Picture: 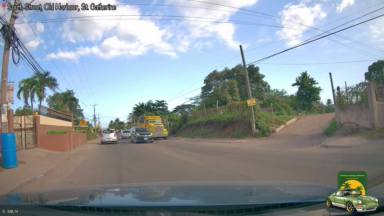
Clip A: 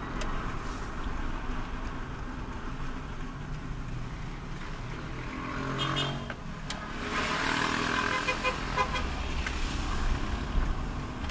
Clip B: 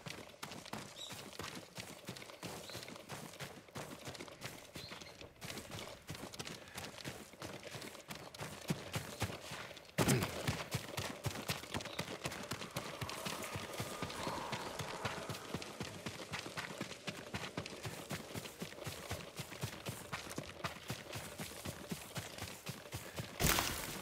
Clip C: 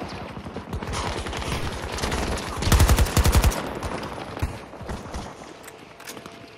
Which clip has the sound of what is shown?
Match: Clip A